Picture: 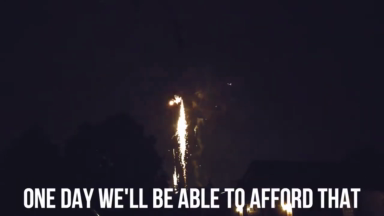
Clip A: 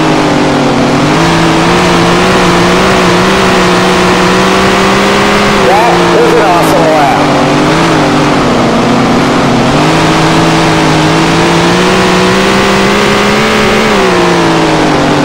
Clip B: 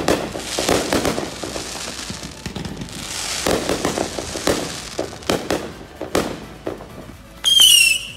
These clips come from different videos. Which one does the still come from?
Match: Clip B